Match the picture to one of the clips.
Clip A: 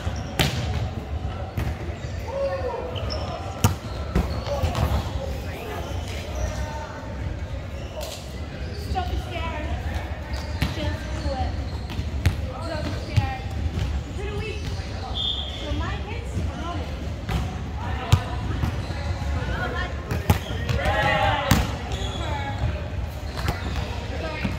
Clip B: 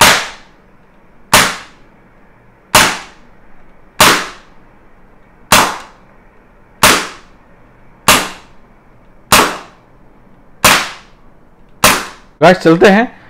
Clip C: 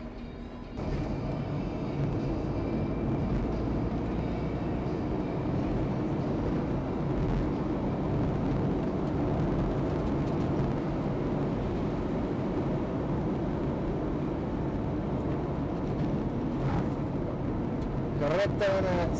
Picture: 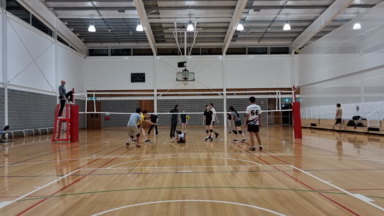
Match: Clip A